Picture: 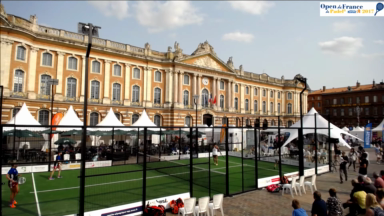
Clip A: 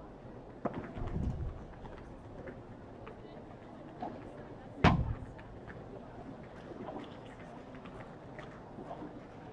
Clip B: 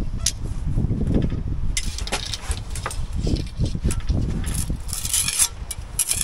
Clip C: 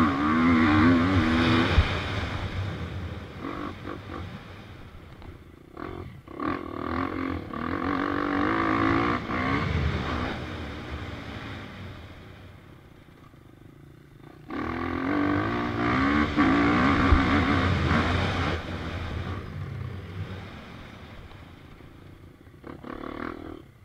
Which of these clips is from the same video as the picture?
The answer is A